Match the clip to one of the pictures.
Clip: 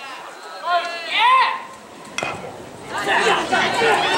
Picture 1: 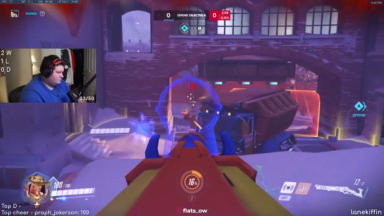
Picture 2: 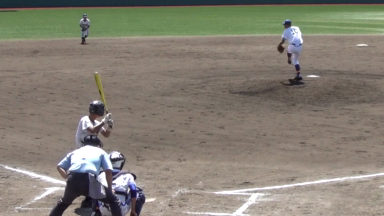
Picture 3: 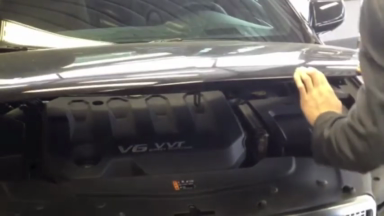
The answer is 2